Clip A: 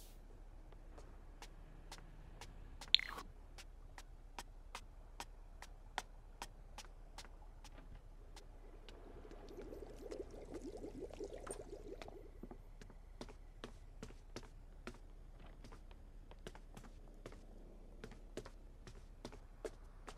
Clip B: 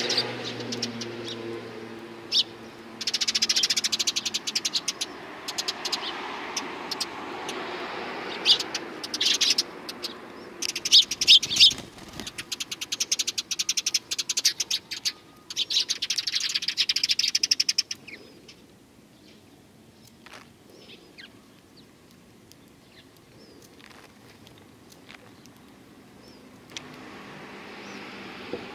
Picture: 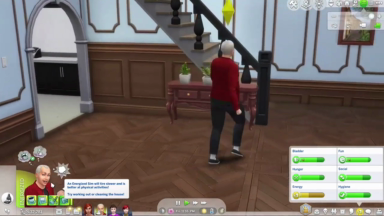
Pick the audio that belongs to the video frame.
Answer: A